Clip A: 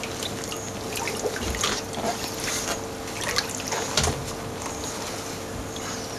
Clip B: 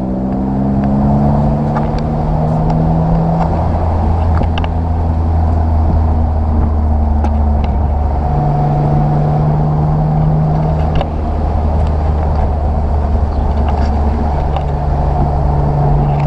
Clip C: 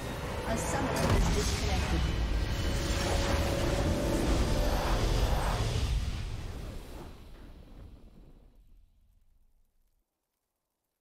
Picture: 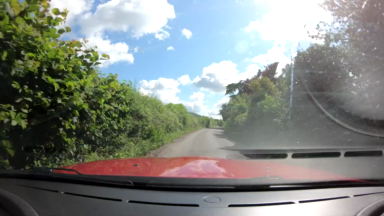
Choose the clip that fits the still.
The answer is B